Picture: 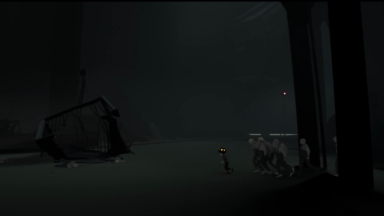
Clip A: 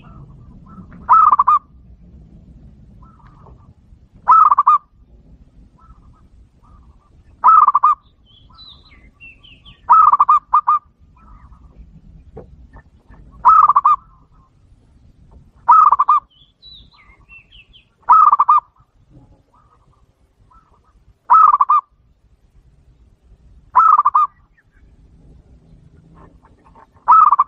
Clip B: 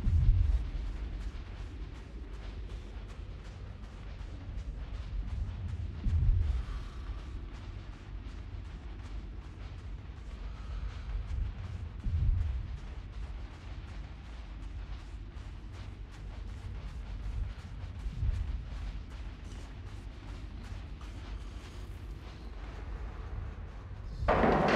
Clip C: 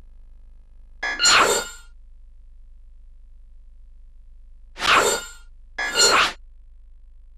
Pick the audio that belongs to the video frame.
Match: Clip B